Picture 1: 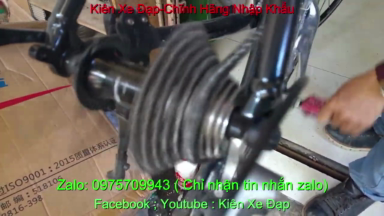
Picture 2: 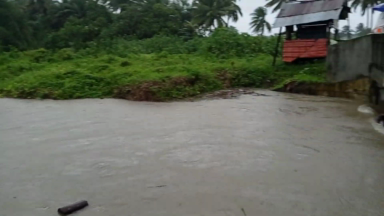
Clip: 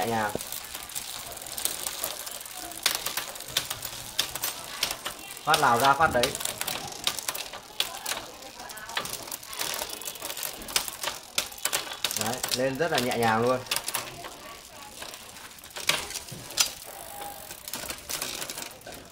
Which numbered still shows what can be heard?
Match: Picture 1